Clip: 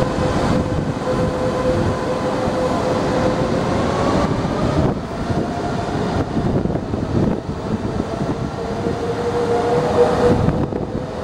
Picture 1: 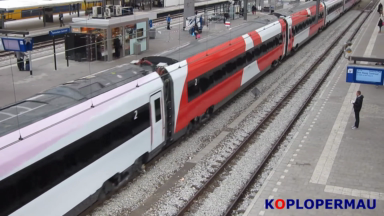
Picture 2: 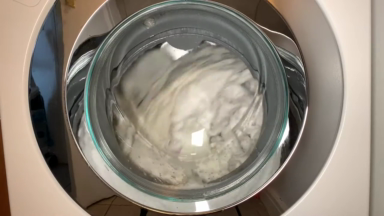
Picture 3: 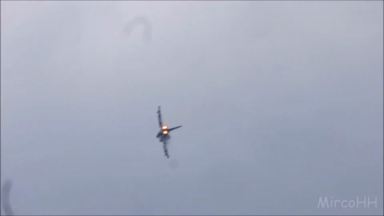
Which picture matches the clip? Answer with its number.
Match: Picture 1